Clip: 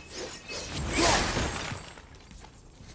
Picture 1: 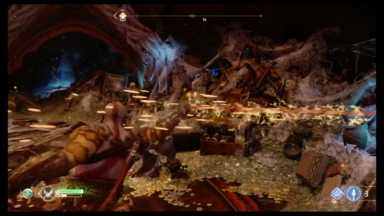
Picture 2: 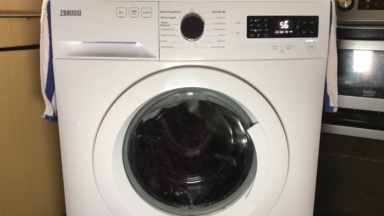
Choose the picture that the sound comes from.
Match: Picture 1